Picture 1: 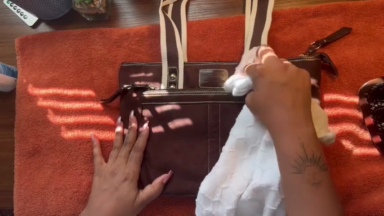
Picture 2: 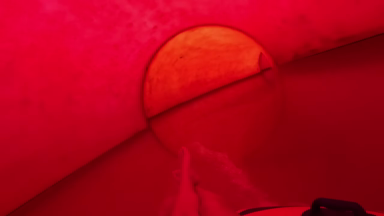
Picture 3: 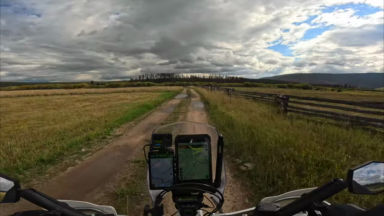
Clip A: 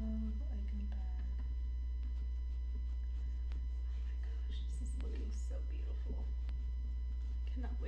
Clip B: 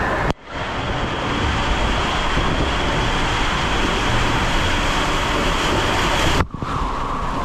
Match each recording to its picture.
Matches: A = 1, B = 2